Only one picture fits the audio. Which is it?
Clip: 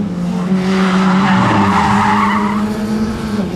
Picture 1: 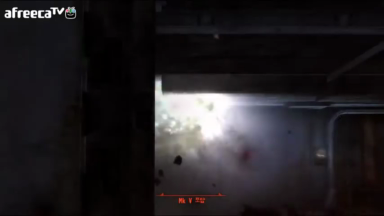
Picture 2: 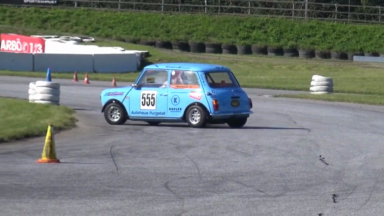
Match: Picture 2